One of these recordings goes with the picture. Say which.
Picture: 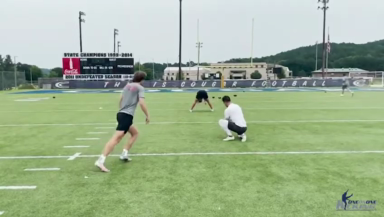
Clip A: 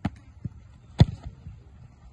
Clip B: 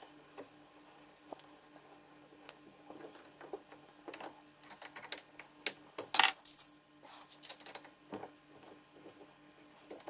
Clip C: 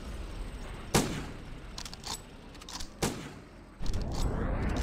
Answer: A